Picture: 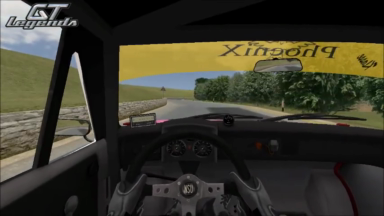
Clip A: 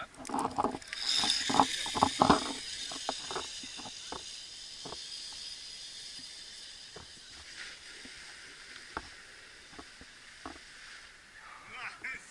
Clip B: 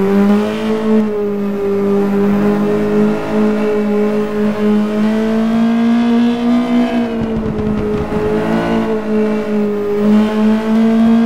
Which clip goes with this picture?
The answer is B